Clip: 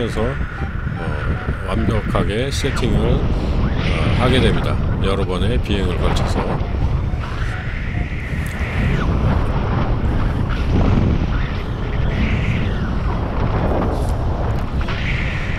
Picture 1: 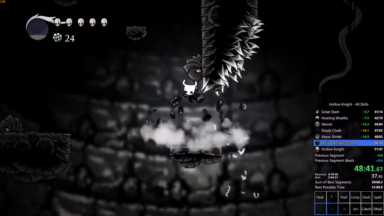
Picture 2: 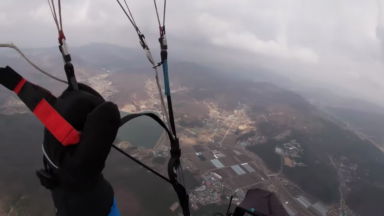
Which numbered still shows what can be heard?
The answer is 2